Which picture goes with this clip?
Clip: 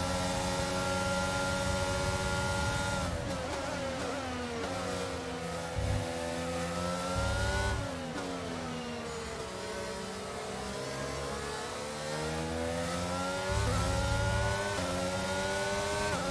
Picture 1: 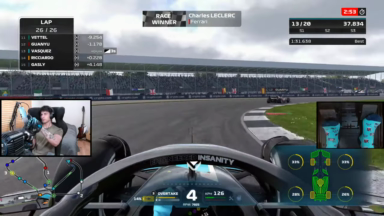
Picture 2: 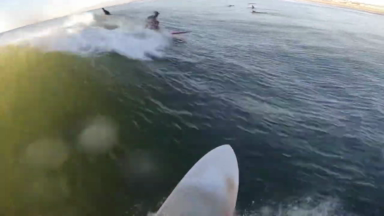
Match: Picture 1